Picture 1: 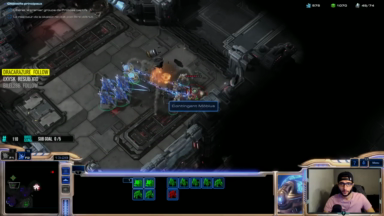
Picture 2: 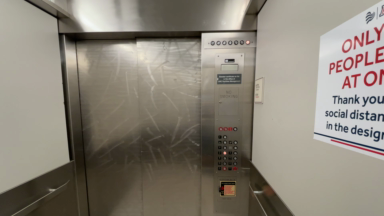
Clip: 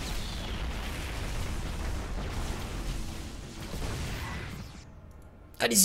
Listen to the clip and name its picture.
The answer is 1